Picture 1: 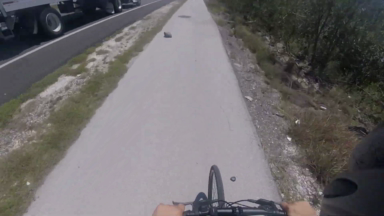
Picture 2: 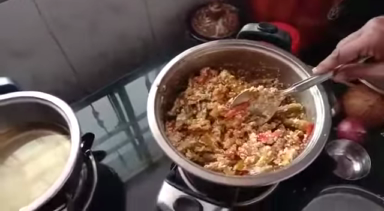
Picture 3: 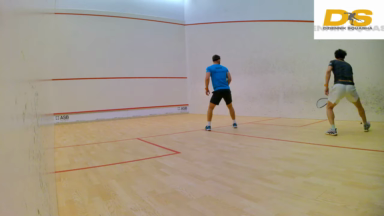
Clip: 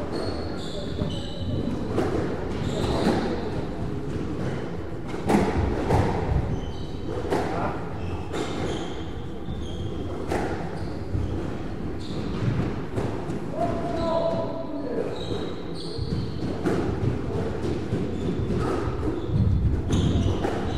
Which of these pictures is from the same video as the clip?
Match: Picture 3